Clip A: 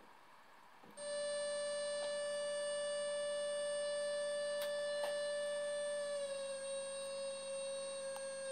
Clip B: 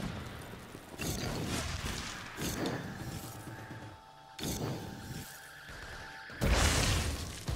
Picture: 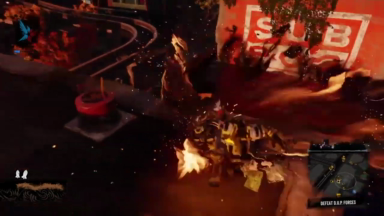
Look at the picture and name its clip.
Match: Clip B